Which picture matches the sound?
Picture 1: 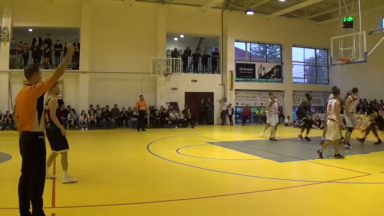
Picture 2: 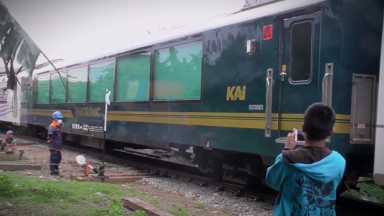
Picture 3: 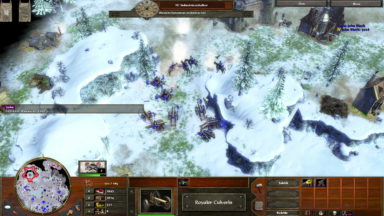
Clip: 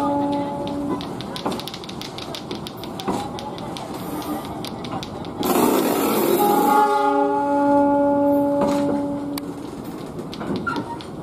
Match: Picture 2